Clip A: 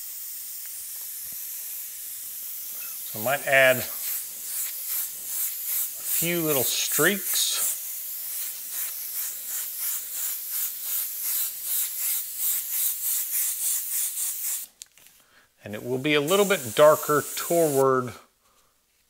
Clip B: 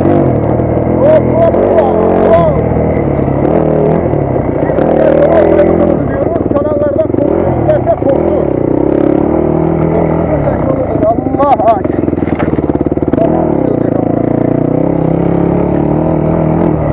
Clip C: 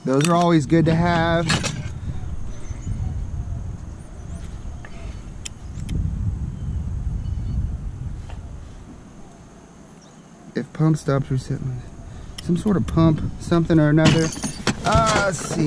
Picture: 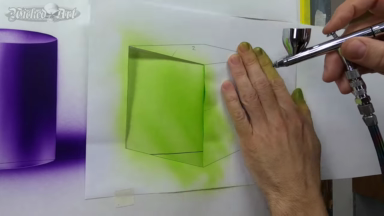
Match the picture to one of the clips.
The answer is A